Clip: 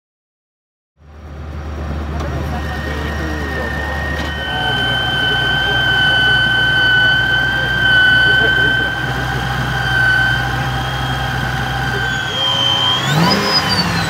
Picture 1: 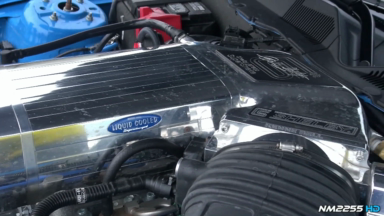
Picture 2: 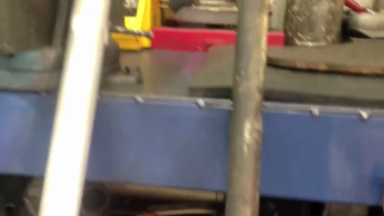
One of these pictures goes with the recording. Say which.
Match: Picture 1